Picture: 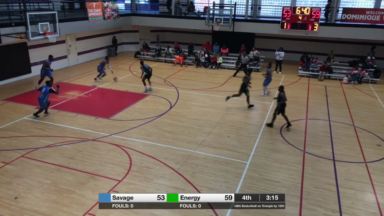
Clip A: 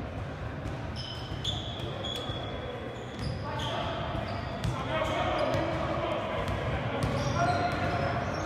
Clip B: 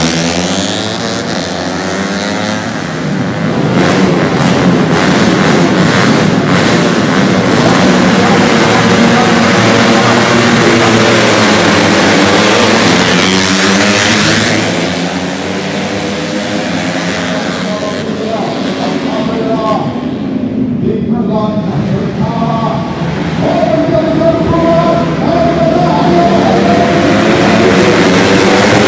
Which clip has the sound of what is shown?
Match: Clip A